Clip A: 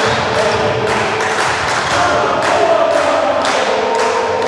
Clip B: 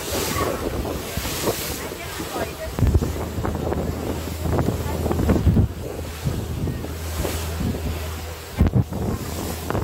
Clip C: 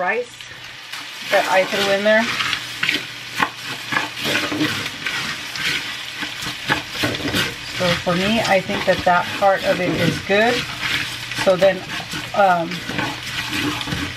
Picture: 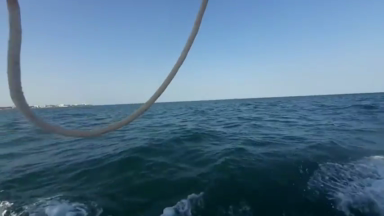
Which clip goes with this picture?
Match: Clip B